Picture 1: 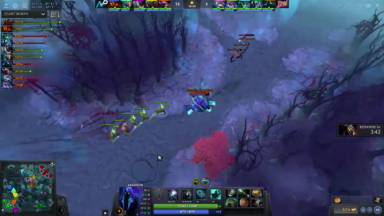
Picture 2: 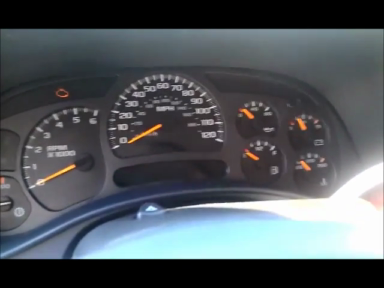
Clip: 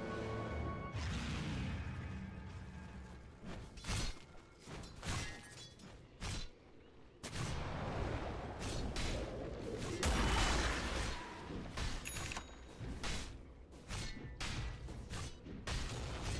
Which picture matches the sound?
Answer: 1